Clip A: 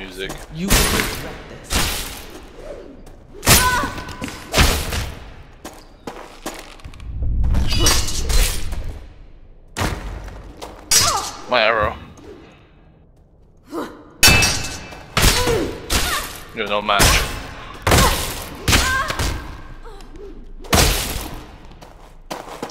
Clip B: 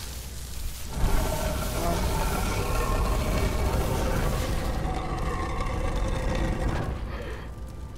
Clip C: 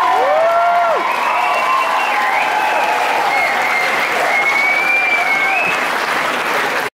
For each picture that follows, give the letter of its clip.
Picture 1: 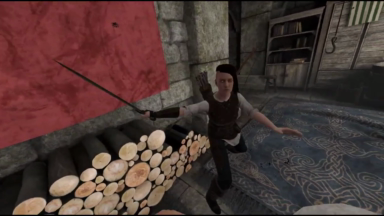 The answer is A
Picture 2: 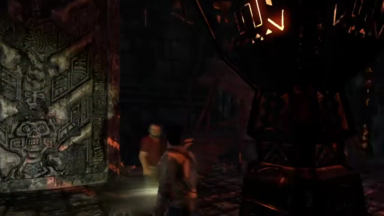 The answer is B